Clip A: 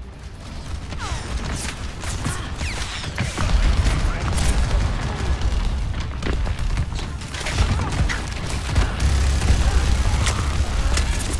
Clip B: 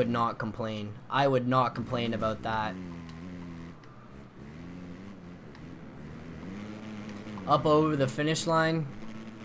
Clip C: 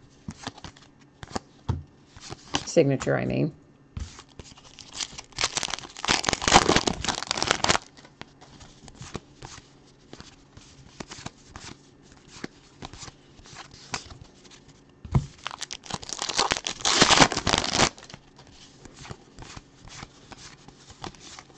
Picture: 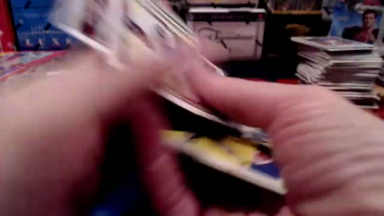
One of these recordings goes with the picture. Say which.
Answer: C